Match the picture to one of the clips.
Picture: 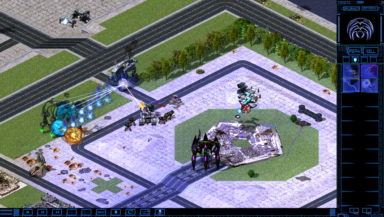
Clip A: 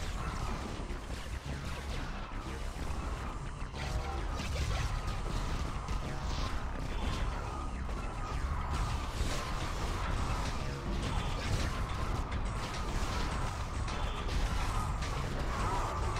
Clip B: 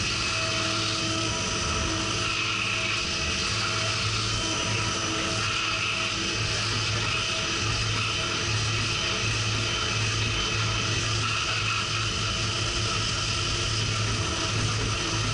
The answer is A